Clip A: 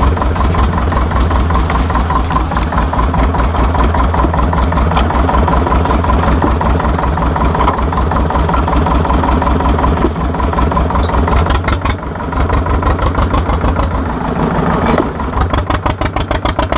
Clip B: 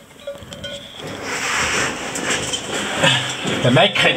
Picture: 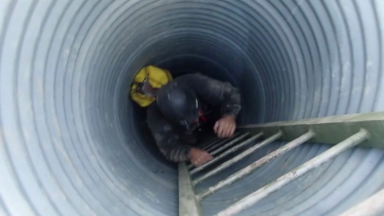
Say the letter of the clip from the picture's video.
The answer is B